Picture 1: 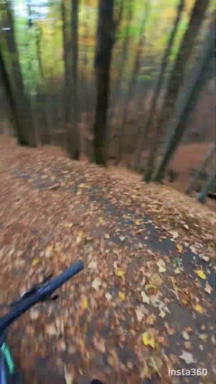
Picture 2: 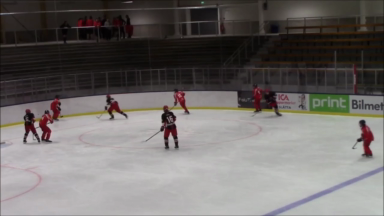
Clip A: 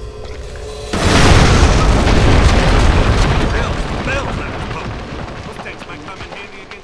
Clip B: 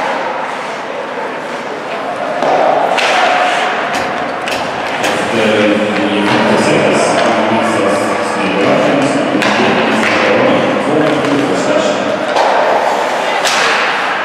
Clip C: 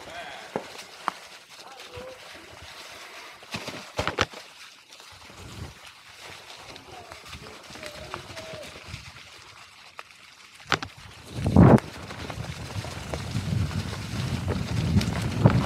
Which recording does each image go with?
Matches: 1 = C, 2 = B